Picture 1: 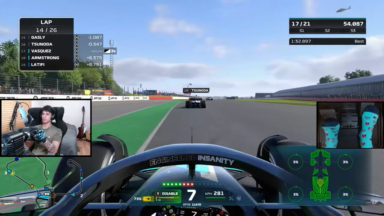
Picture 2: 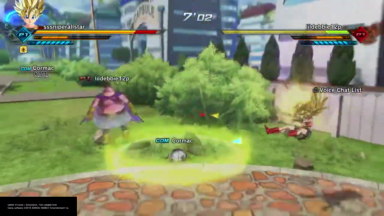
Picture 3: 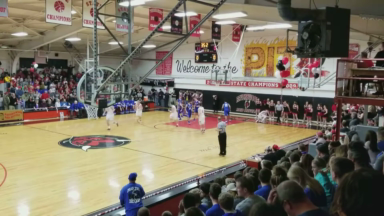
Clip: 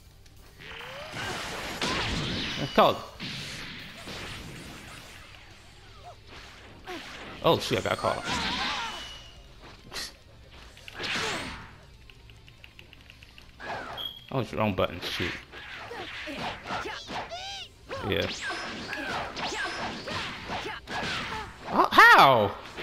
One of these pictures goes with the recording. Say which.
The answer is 2